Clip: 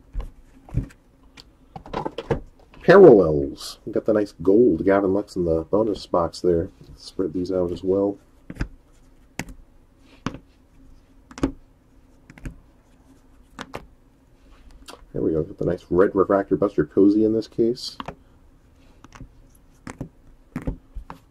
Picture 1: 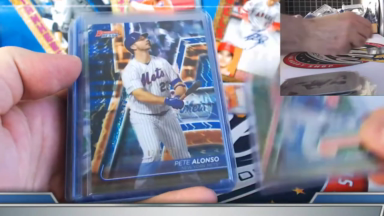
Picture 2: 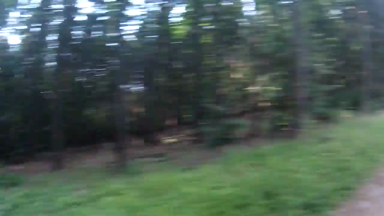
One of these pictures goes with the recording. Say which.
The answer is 1